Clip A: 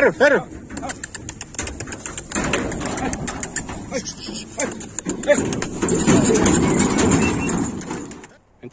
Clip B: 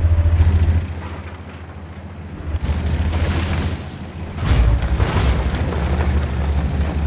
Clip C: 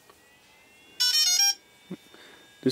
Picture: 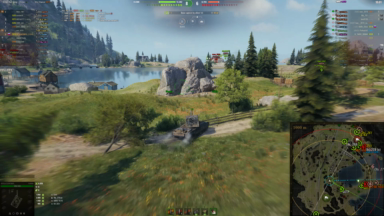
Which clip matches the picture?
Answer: B